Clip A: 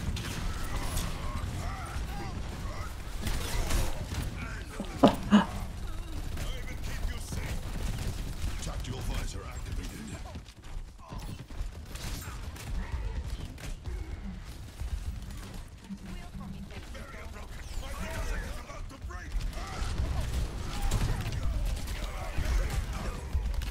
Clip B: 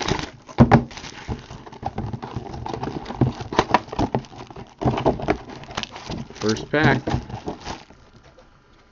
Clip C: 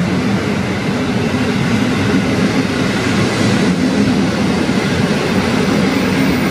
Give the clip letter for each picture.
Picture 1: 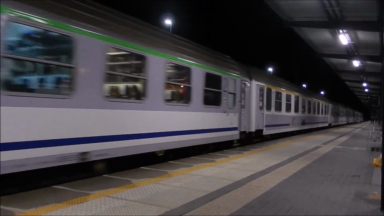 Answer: C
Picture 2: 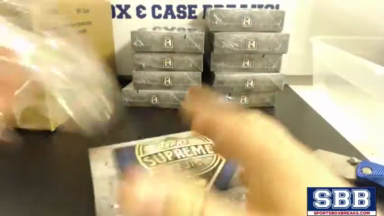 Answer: B